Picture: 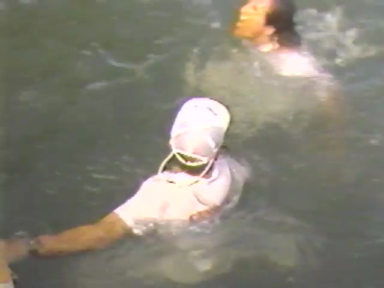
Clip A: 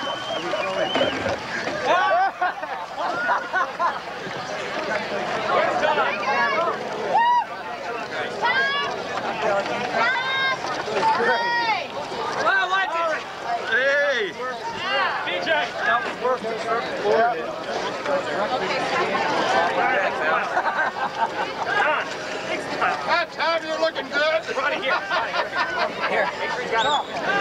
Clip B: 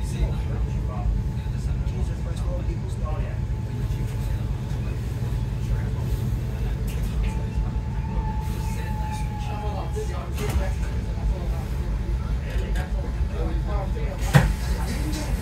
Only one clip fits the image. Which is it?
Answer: A